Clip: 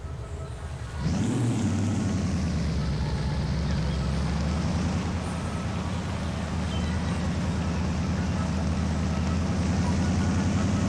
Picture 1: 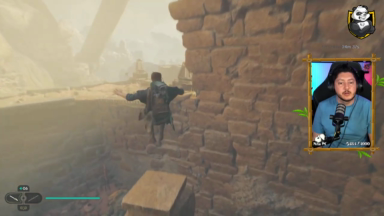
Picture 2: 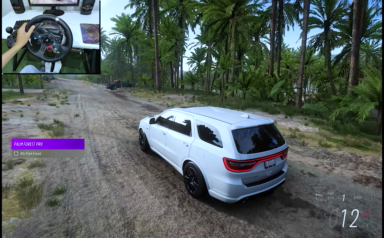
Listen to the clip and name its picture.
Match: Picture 2